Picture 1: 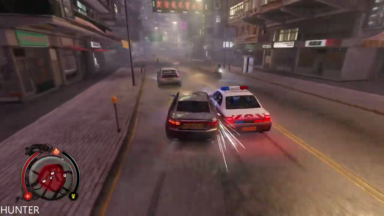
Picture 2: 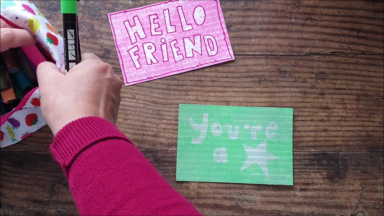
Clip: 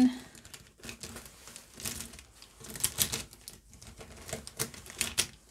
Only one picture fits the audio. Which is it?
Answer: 2